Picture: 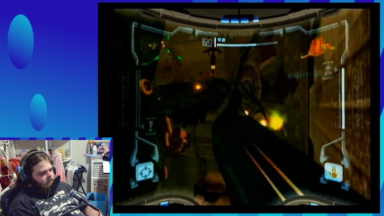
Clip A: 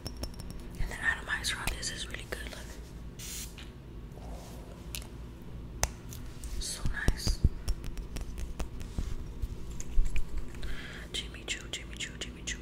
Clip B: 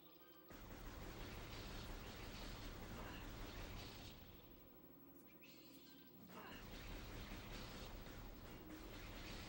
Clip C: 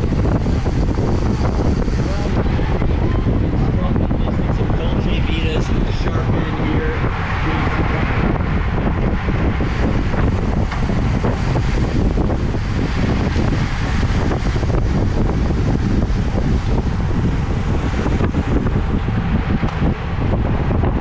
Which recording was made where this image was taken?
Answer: B